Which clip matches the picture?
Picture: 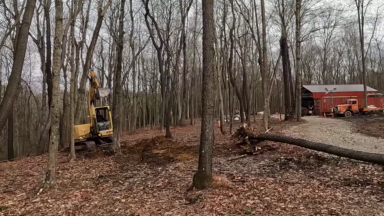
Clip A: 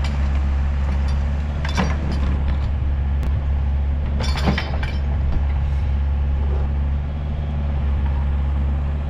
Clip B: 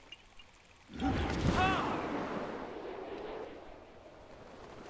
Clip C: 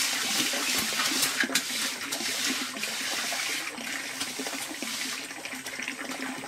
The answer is A